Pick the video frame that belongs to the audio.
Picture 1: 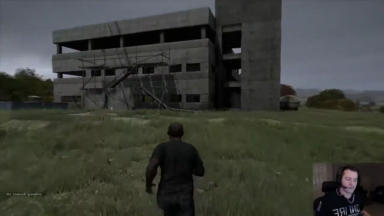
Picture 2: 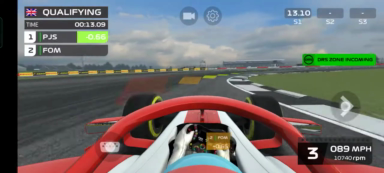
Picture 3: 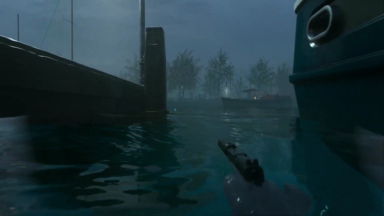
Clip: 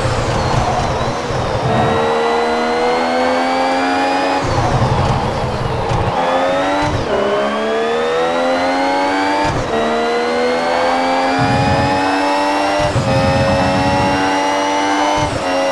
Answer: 2